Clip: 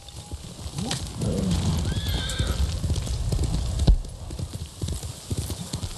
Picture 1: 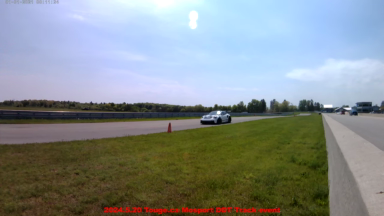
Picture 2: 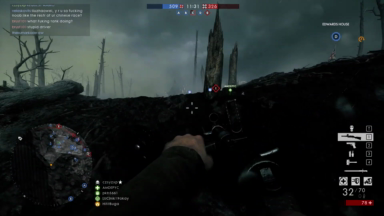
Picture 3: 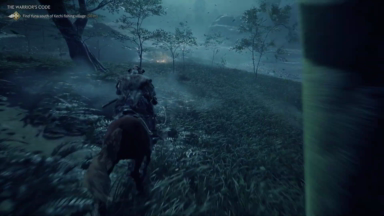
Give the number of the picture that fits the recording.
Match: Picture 3